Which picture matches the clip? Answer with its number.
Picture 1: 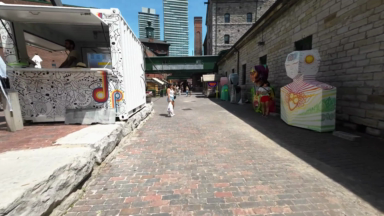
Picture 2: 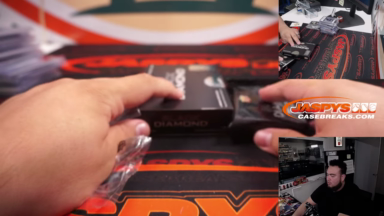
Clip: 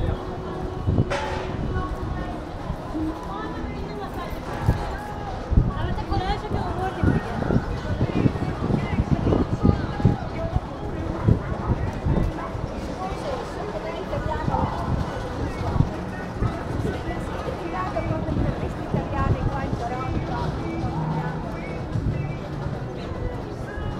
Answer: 1